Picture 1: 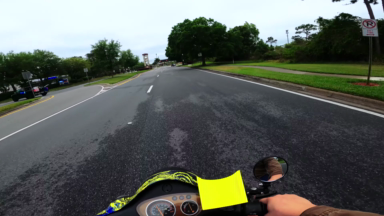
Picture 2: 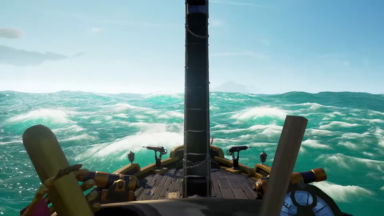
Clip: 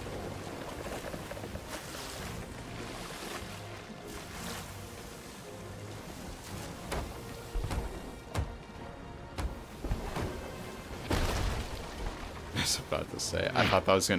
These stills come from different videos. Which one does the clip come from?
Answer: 2